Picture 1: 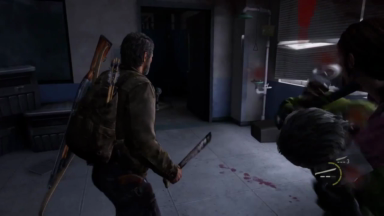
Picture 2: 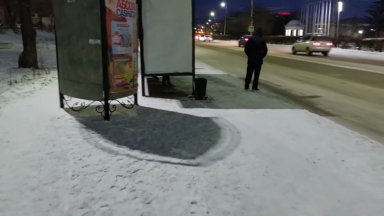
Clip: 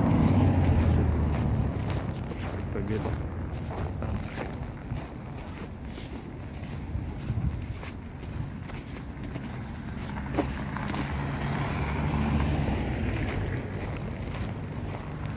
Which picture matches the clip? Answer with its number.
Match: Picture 2